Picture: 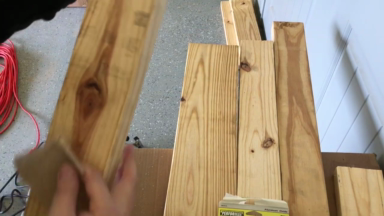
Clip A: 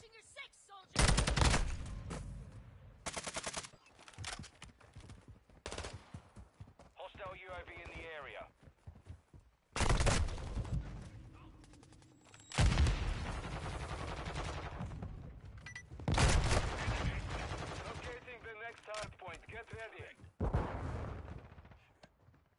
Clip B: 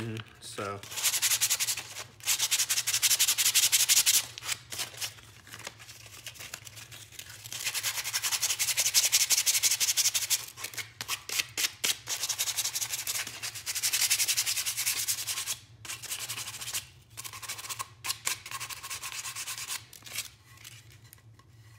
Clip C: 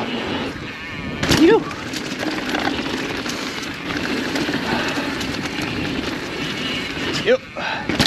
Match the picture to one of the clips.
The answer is B